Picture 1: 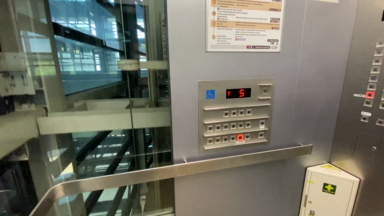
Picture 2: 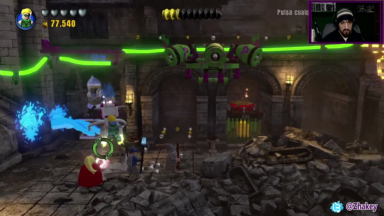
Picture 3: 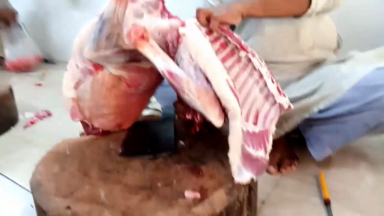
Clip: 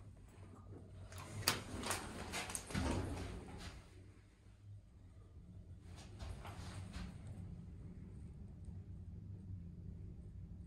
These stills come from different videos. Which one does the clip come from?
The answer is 1